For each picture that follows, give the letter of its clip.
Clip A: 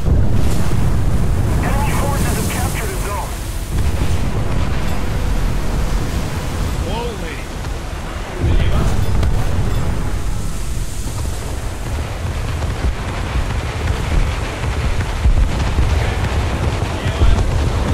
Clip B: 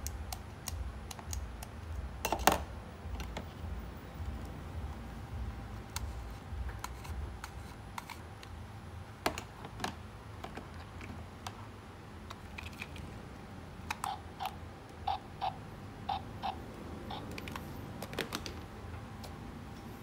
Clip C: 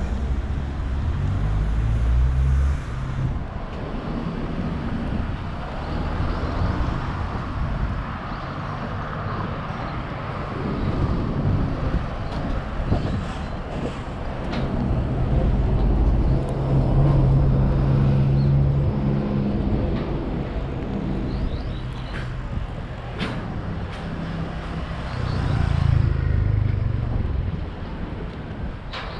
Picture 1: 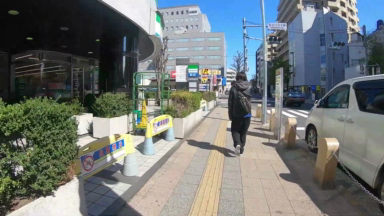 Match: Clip C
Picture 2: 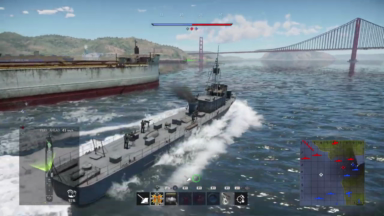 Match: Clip A